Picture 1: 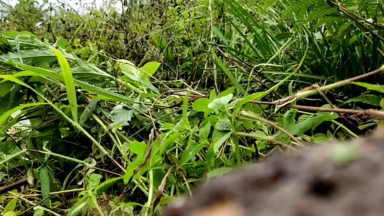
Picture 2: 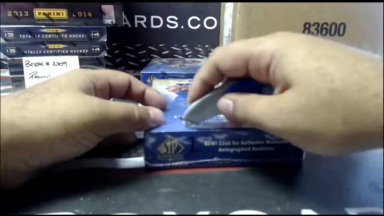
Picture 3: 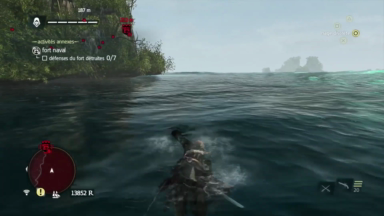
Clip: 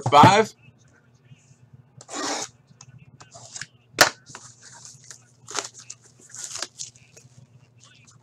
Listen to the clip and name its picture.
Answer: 2